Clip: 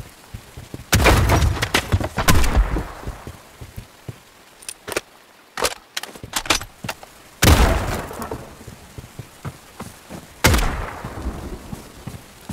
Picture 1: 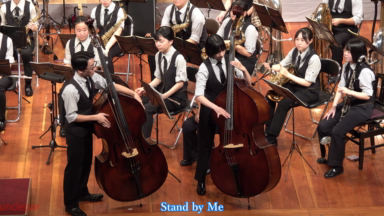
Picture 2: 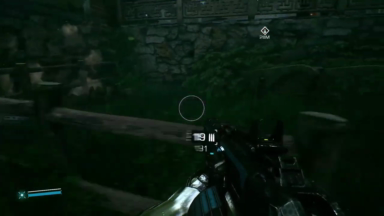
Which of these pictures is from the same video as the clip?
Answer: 2